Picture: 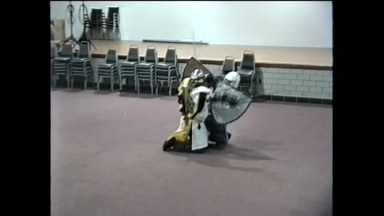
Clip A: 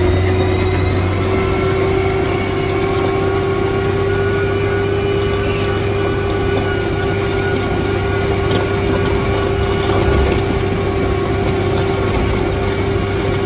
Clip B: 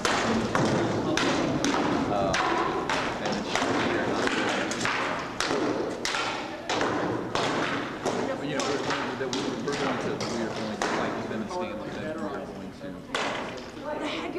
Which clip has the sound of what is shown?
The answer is B